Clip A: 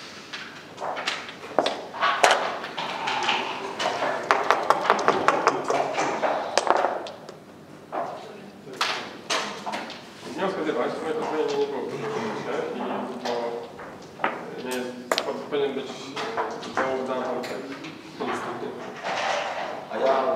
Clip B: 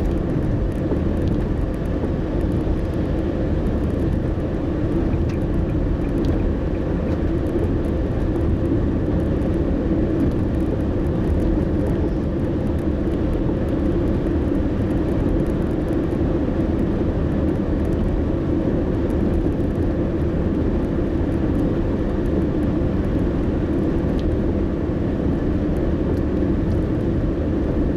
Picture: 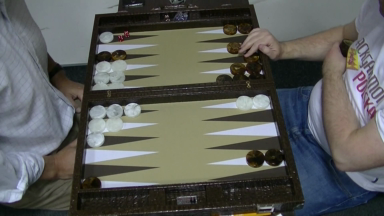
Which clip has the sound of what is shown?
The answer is A